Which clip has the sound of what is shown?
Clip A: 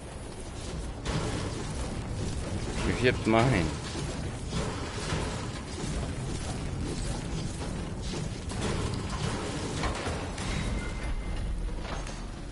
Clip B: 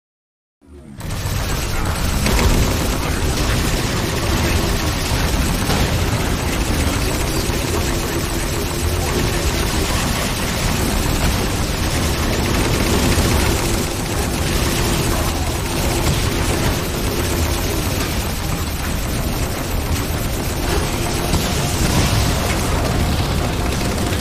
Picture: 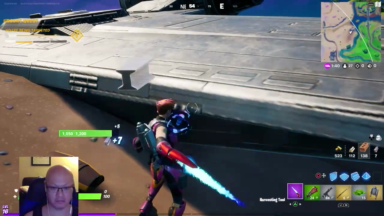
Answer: A